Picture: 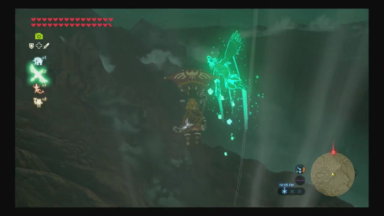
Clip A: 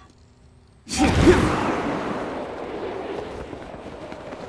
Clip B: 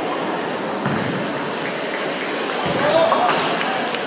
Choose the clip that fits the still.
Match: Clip A